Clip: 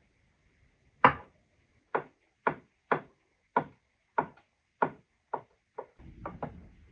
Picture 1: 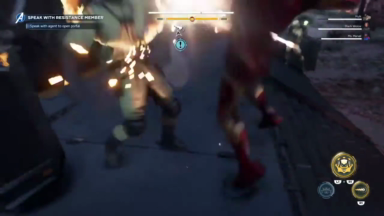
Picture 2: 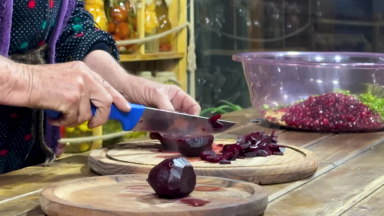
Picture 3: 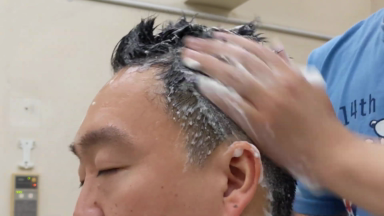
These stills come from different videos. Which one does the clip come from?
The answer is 2